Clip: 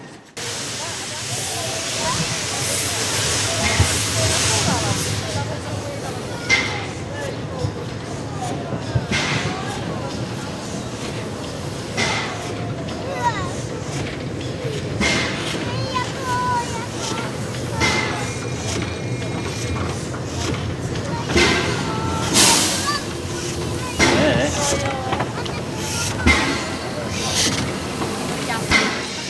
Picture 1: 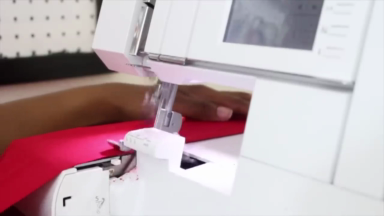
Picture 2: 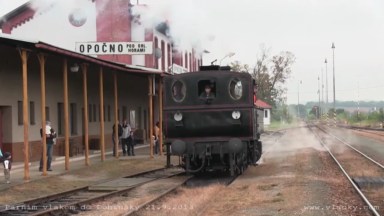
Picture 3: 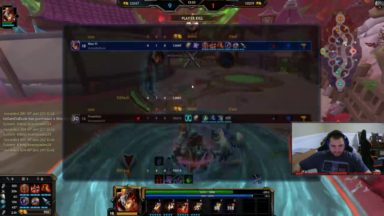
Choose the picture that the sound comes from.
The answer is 2